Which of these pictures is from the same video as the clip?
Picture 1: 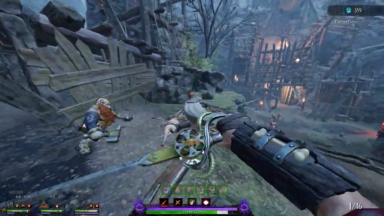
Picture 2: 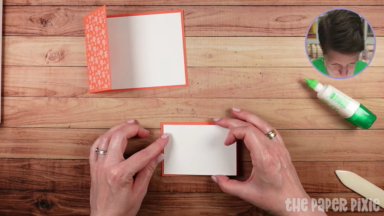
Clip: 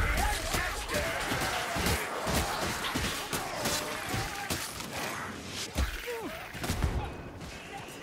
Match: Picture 1